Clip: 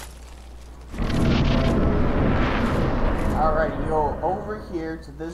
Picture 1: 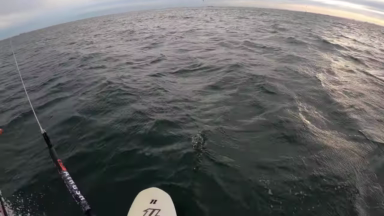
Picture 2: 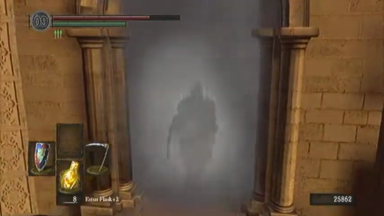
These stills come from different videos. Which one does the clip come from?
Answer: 2